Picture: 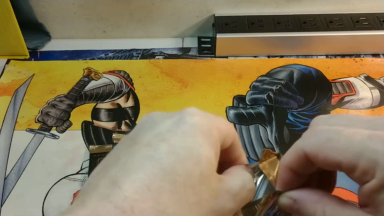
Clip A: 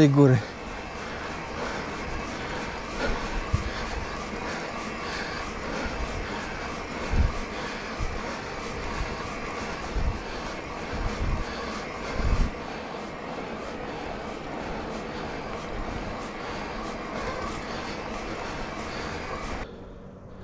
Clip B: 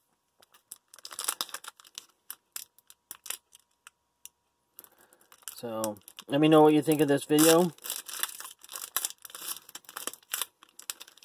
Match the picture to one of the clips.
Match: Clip B